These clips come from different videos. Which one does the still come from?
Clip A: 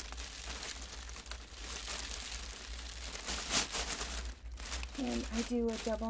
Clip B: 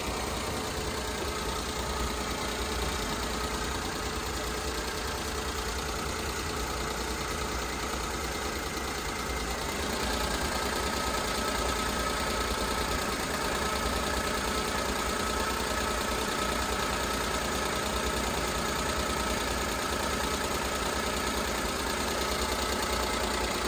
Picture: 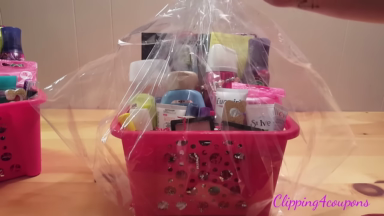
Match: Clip A